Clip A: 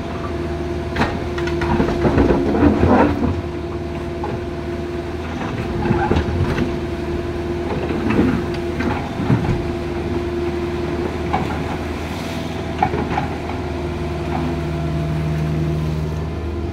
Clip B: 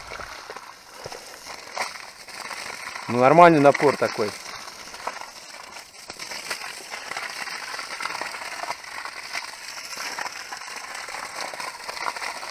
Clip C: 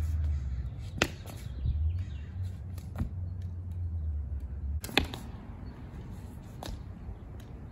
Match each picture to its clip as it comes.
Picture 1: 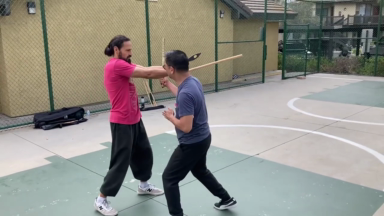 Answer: C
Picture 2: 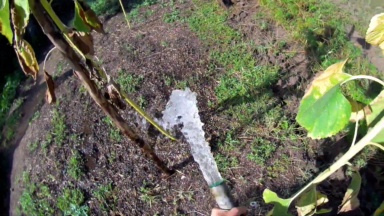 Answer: B